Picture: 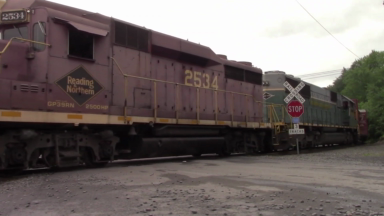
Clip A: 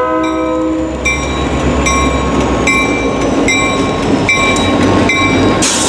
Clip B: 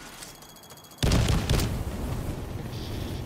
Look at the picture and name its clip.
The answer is A